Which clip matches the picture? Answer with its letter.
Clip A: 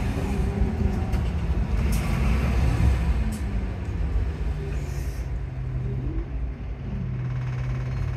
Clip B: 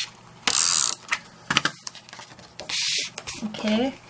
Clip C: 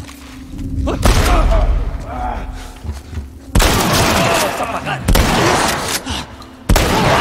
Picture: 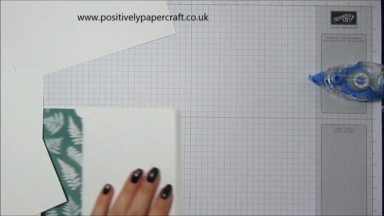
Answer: B